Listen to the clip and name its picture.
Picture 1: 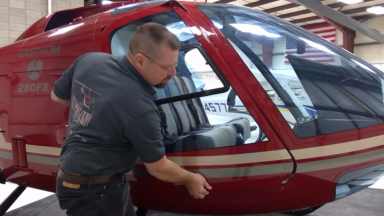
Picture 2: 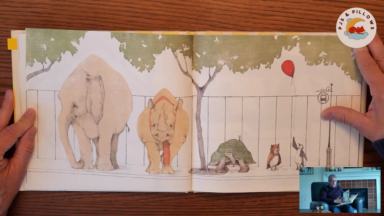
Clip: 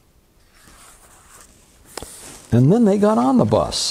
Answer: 2